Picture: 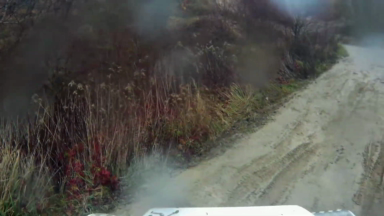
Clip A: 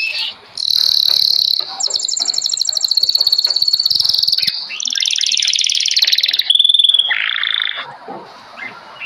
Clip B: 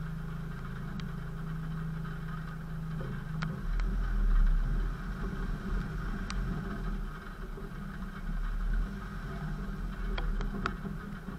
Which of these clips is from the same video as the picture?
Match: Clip B